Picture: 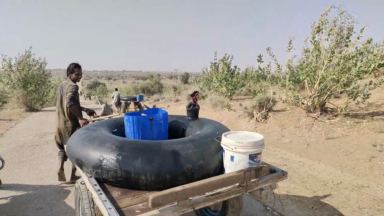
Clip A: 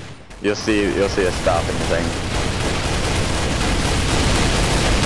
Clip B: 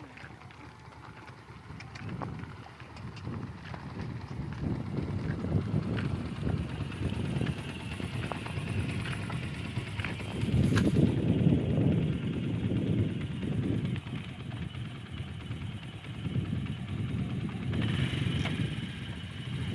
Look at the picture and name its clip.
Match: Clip B